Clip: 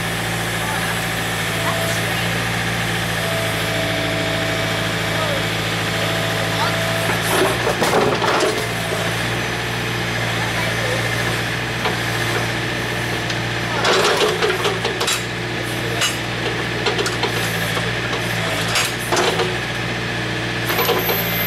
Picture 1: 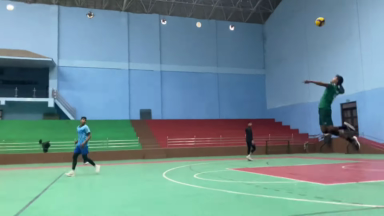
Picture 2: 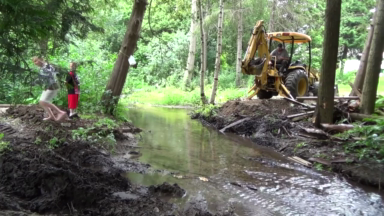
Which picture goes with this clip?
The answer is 2